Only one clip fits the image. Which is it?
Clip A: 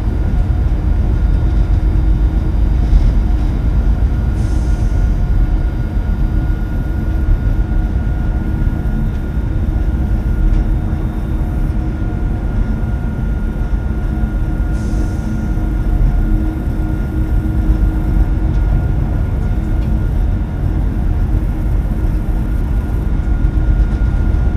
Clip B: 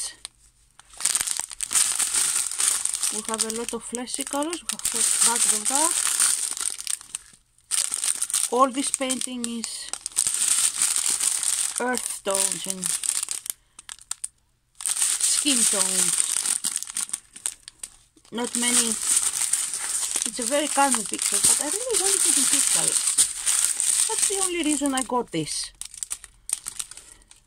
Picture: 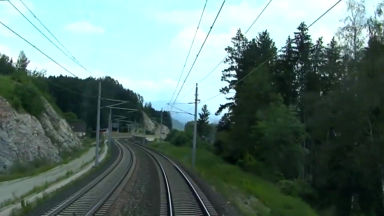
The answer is A